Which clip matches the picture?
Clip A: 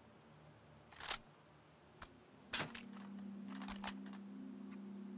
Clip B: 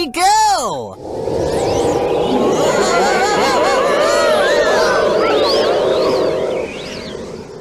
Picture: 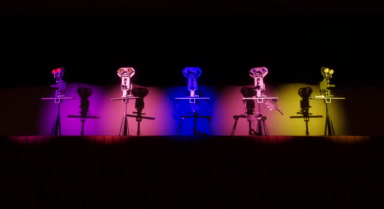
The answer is B